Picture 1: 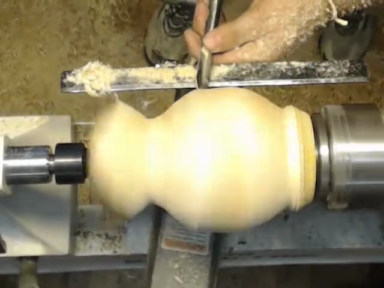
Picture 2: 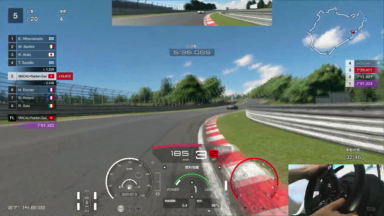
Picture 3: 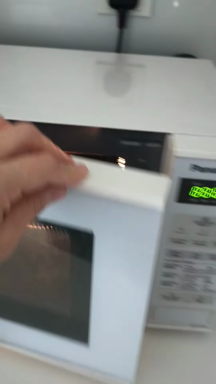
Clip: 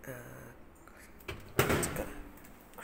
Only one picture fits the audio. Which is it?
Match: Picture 3